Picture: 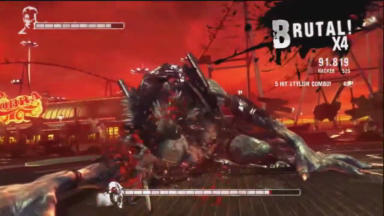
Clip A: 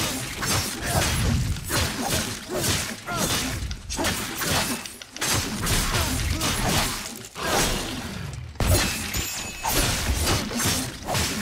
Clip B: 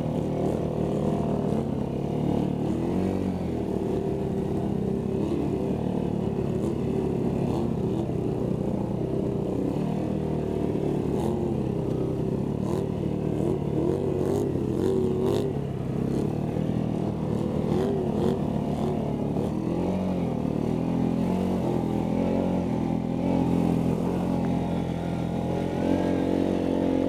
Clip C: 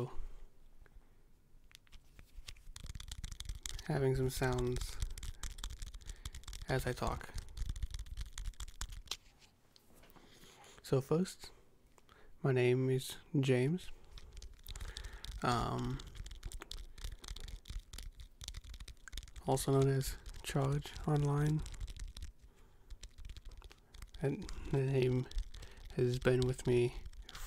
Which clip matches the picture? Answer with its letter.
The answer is A